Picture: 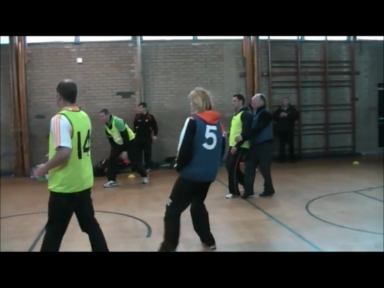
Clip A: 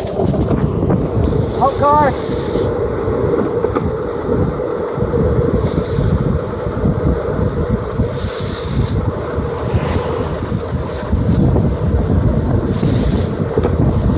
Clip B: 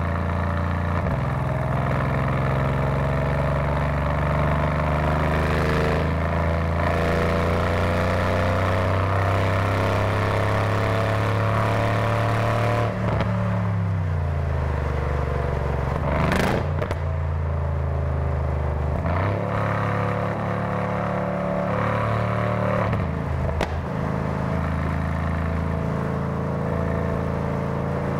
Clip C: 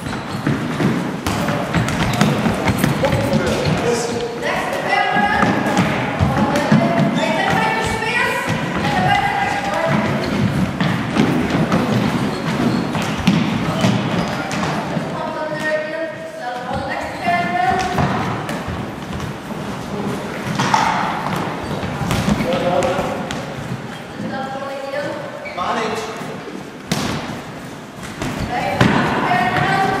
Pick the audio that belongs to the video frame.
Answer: C